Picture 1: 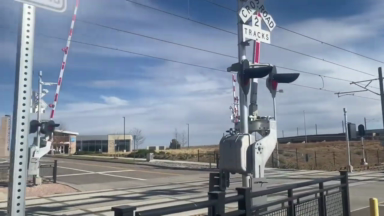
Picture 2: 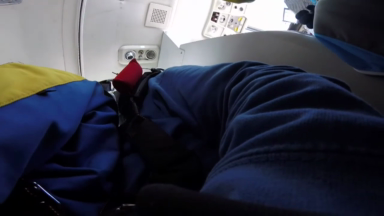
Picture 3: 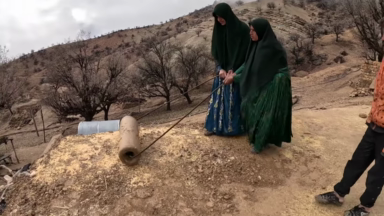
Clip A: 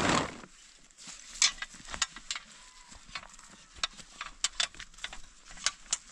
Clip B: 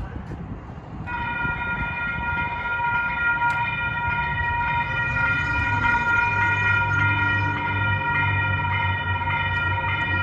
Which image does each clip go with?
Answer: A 3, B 1